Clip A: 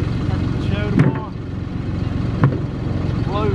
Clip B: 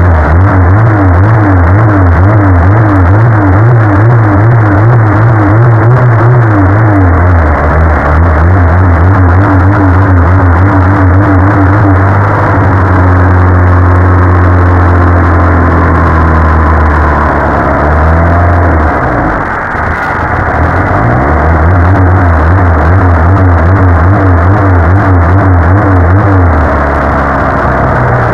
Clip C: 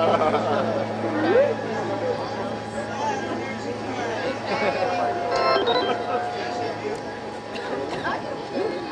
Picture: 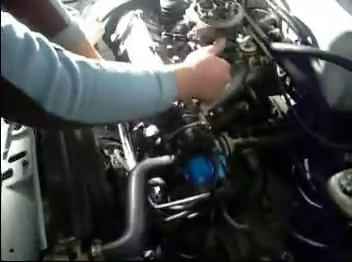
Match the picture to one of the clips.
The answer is B